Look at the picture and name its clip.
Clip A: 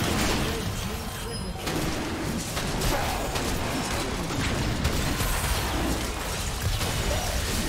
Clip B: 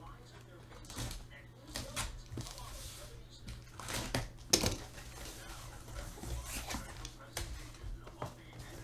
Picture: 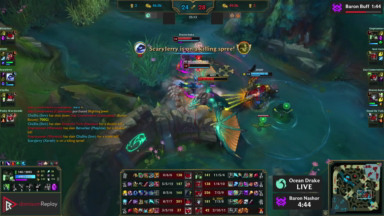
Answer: A